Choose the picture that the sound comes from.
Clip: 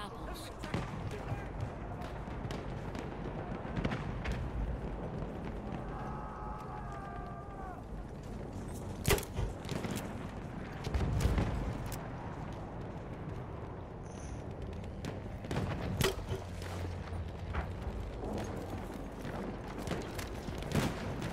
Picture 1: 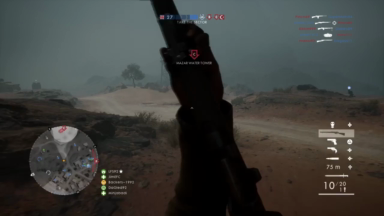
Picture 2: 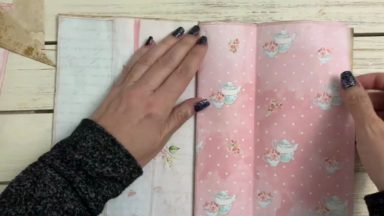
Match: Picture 1